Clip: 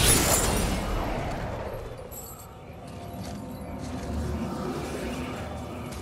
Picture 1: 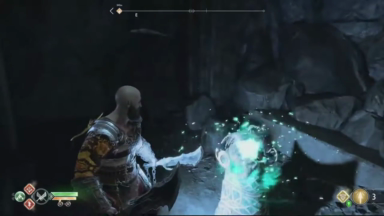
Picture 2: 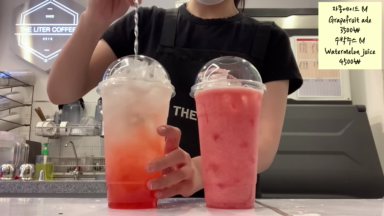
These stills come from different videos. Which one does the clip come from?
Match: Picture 1